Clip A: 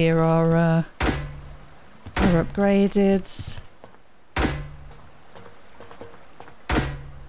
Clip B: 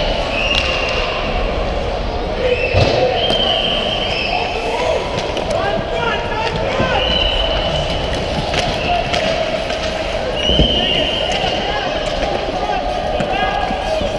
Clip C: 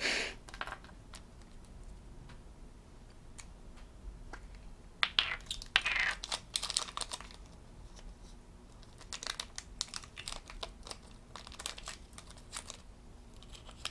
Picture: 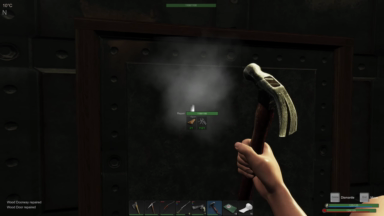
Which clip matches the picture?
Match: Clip A